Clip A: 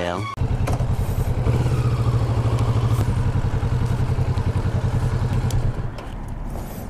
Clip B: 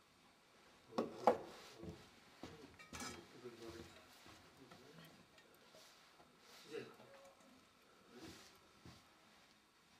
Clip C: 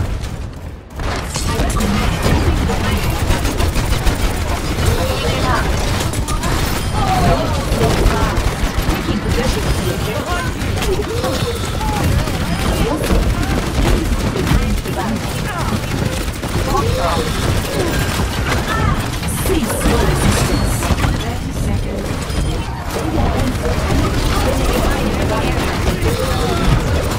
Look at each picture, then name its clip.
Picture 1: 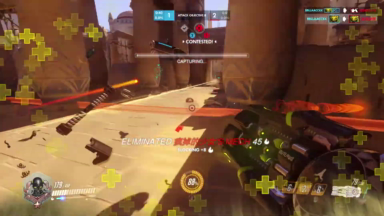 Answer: C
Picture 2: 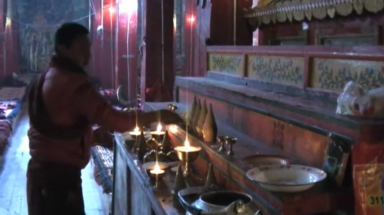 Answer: B